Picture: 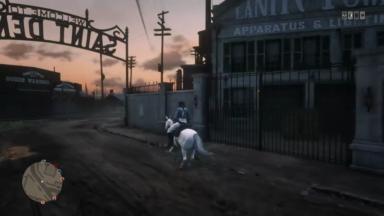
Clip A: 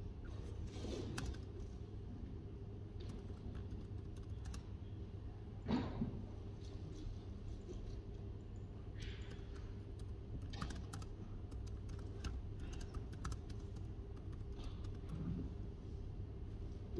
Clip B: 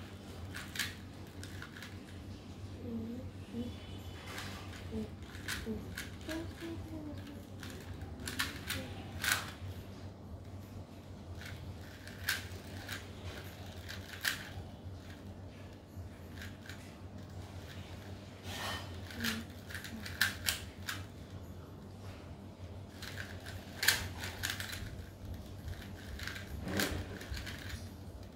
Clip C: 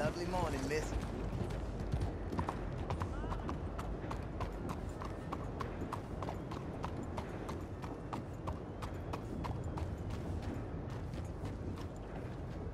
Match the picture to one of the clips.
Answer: C